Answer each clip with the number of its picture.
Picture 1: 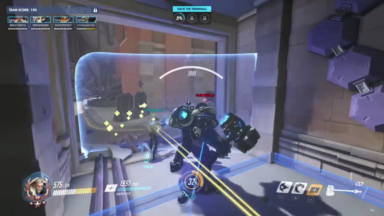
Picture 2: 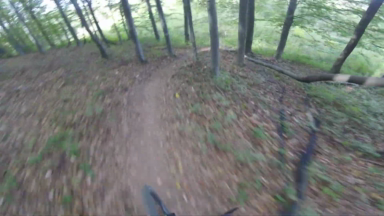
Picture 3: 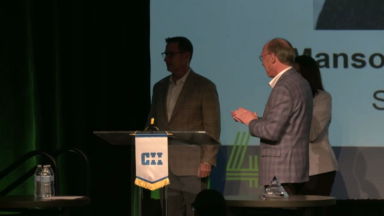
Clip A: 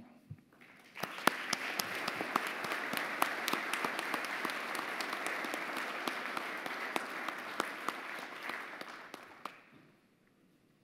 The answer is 3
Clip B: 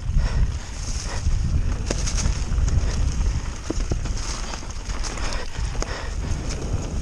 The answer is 2